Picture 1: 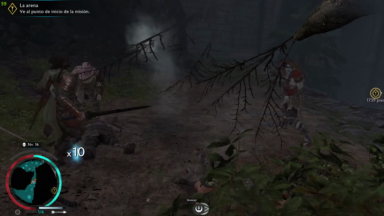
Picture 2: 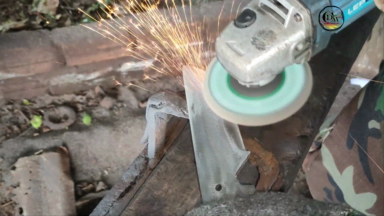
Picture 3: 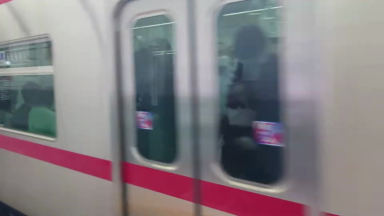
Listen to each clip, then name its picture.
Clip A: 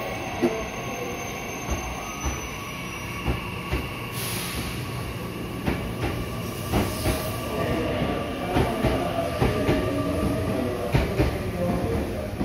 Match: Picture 3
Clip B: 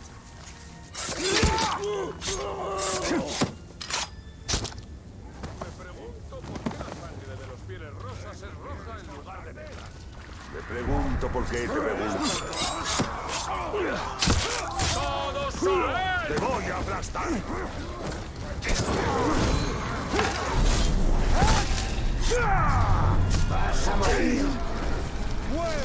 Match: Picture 1